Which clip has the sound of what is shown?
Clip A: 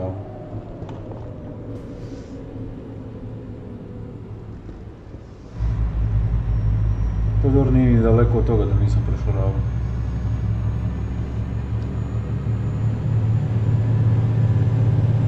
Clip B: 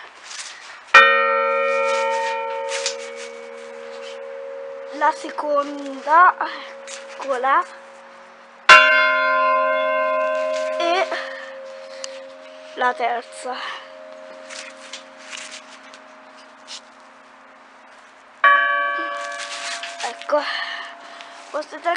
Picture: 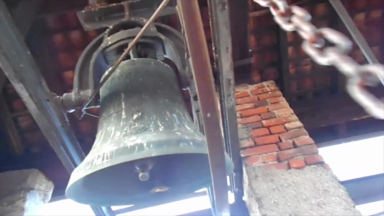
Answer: B